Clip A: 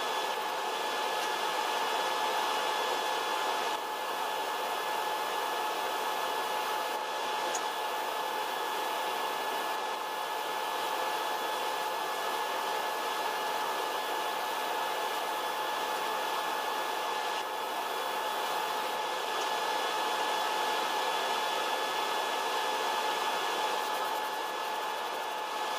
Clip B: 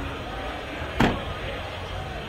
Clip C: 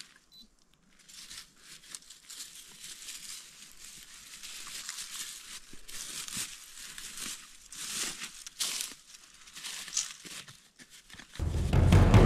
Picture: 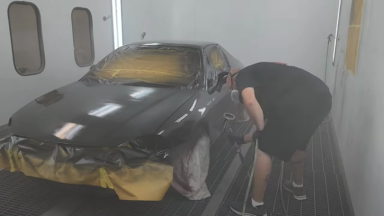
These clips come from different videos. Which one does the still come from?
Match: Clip A